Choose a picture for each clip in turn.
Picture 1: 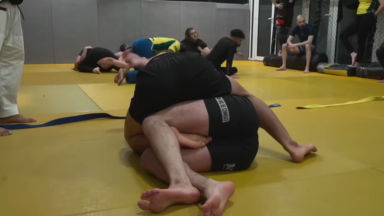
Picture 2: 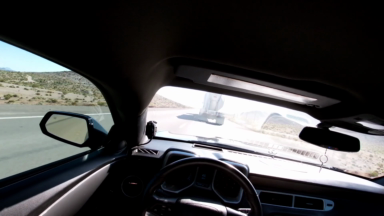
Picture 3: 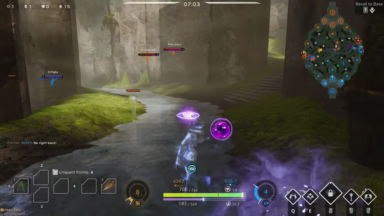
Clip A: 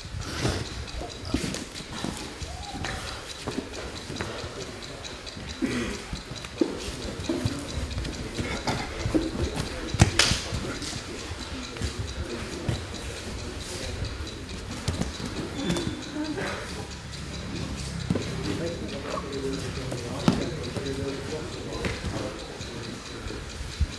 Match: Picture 1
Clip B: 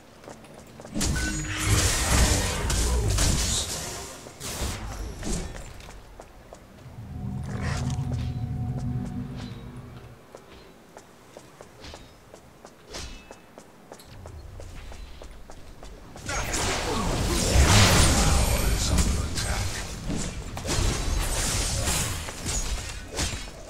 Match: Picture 3